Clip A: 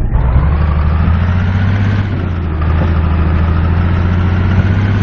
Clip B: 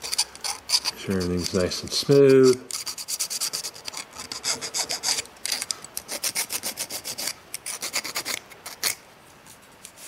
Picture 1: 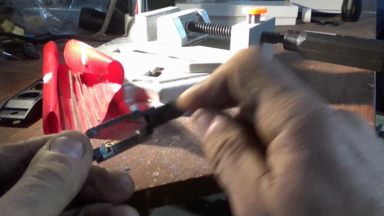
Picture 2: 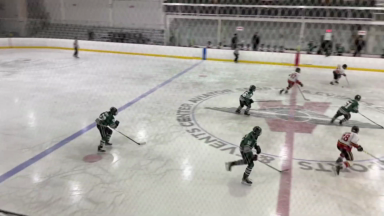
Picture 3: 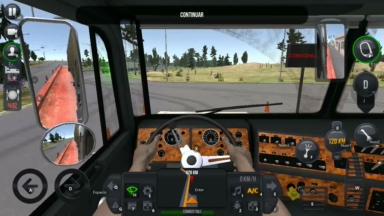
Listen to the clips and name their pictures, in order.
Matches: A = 3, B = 1